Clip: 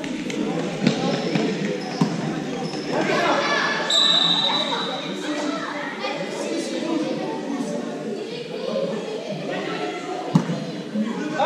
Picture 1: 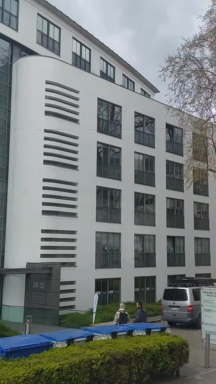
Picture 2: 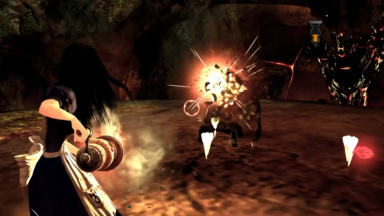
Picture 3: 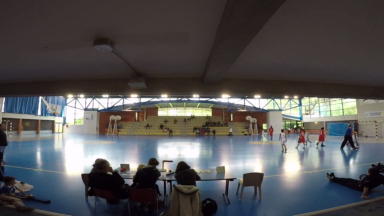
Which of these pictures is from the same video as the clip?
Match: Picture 3